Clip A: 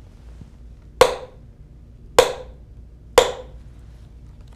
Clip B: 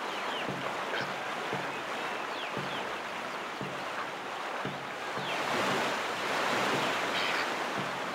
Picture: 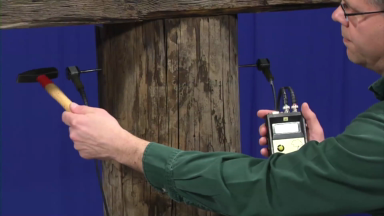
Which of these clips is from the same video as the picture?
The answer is A